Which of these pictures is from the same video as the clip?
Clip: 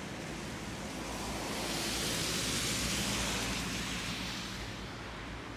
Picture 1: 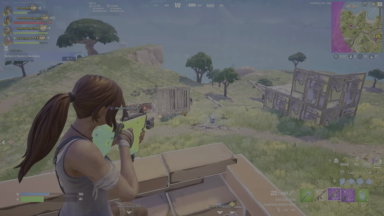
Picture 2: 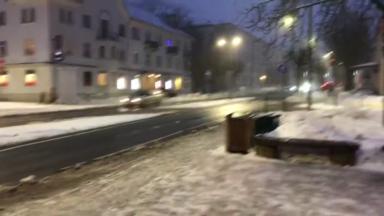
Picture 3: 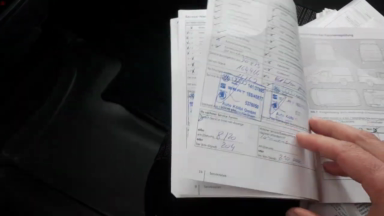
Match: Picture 2